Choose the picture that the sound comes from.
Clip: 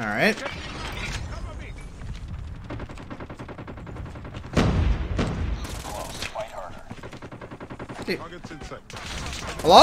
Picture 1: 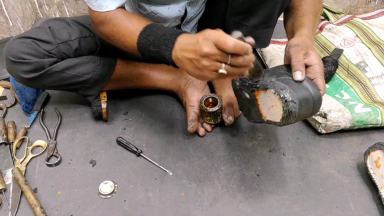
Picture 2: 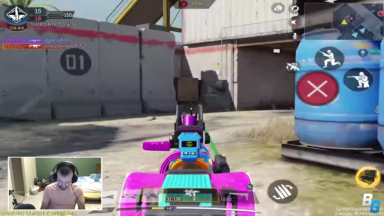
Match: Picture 2